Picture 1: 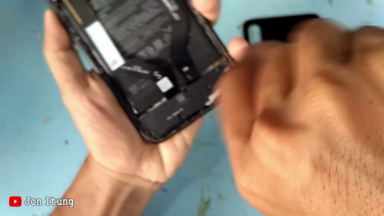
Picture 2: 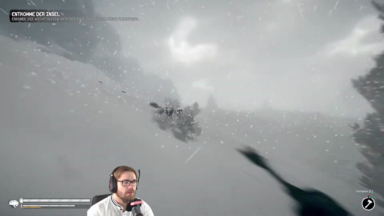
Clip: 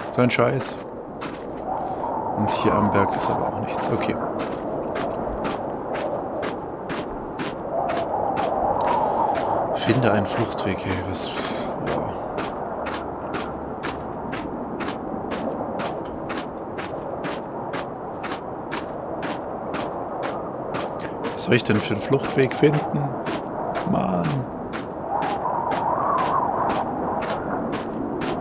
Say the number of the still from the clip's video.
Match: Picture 2